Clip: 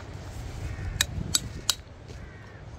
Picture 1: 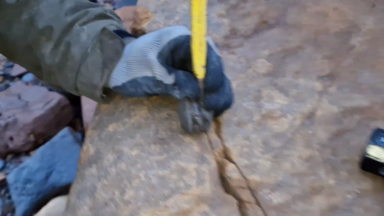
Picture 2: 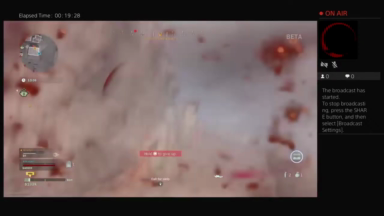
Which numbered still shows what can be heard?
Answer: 1